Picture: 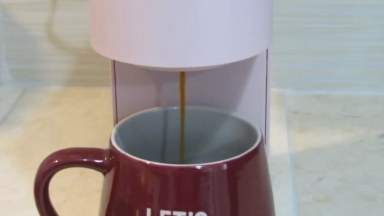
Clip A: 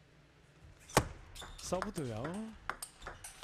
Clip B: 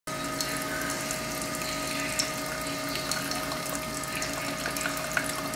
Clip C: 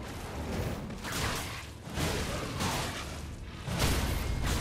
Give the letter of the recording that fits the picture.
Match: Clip B